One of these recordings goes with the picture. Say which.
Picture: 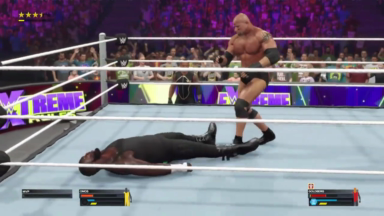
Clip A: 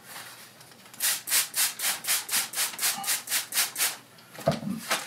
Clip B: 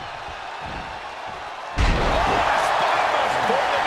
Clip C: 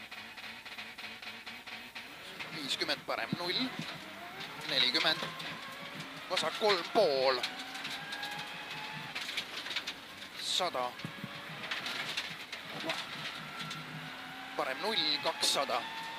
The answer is B